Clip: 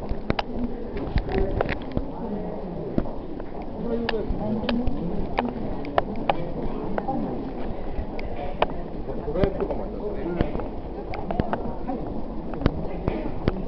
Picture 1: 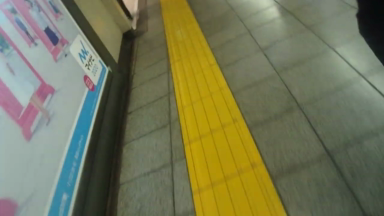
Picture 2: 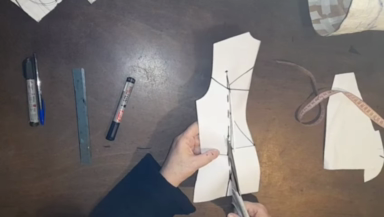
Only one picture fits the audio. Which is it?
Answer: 1